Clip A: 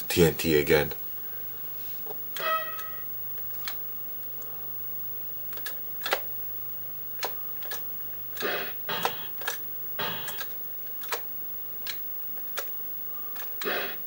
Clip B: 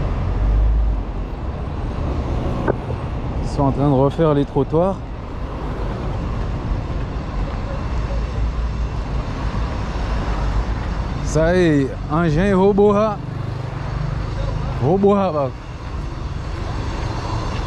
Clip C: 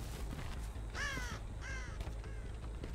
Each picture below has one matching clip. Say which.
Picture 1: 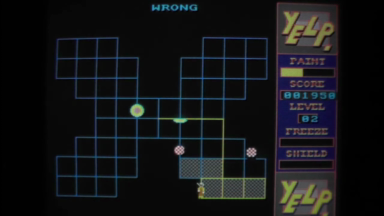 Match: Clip A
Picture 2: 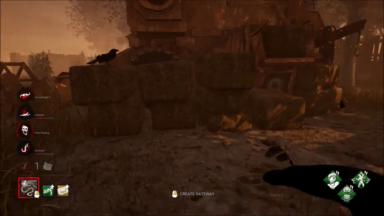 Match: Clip C